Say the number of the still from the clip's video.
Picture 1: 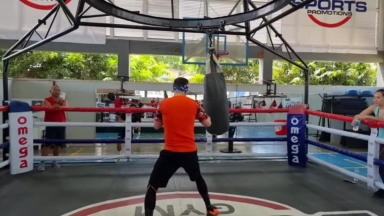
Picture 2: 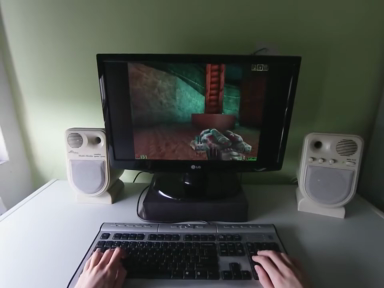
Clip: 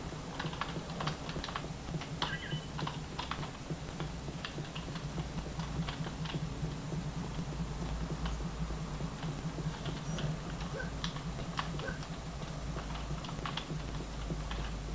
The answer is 2